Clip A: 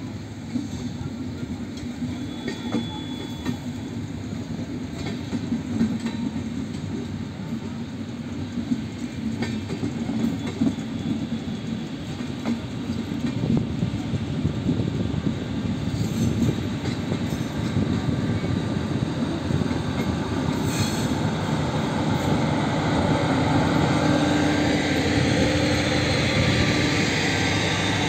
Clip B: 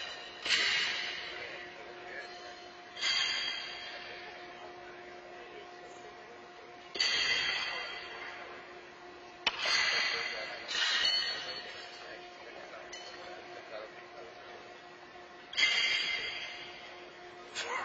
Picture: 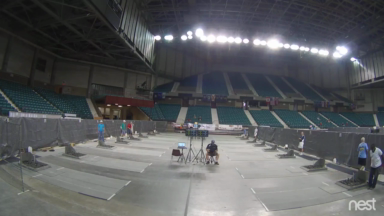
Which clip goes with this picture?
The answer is B